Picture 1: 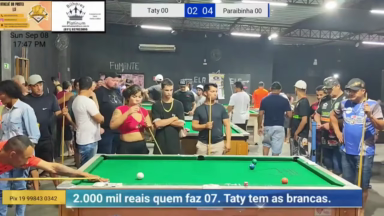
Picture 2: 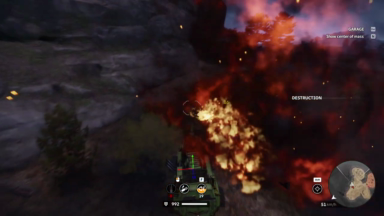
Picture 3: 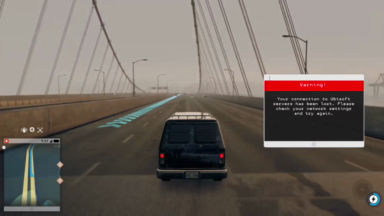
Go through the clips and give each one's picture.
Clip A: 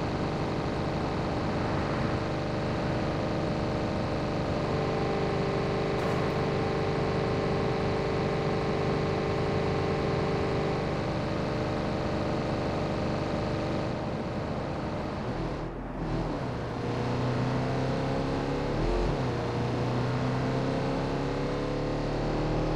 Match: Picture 3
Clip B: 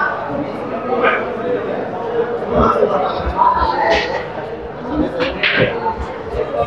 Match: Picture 1